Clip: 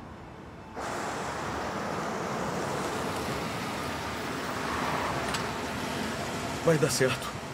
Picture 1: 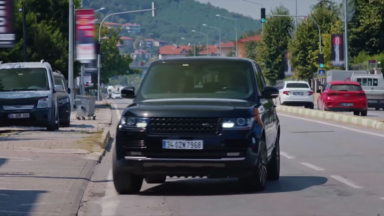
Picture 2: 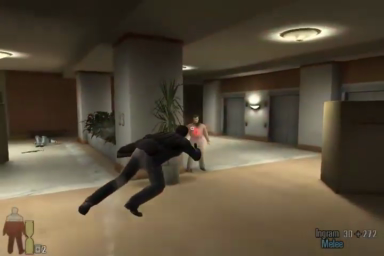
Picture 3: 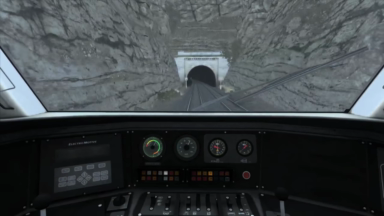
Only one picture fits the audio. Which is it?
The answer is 1